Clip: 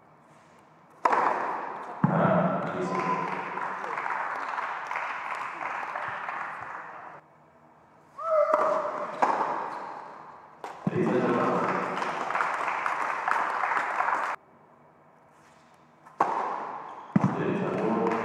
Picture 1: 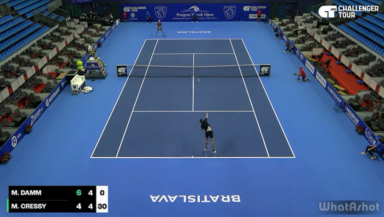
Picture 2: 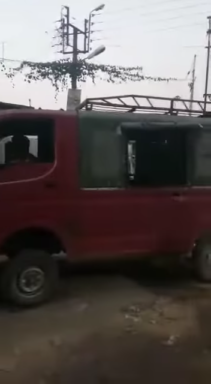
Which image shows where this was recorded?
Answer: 1